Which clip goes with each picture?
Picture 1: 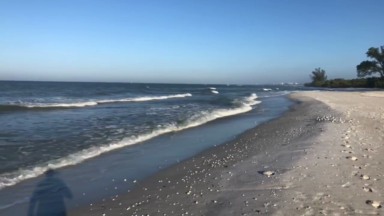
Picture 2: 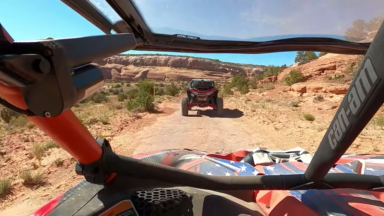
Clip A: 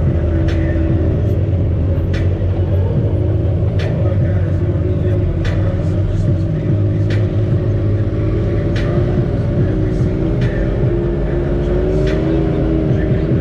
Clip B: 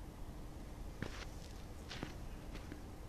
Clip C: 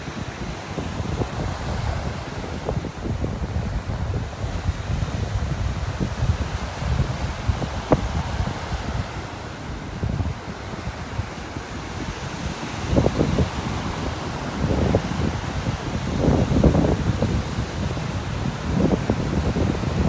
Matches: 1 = C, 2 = A